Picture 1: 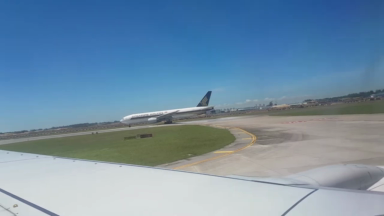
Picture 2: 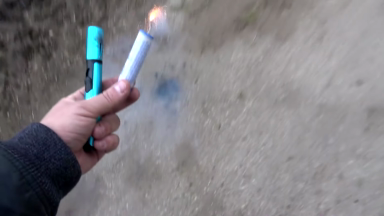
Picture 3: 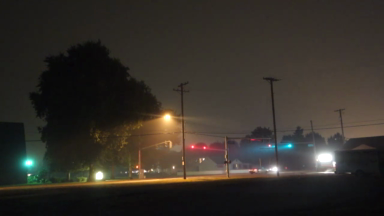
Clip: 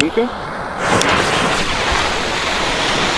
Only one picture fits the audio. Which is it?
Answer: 2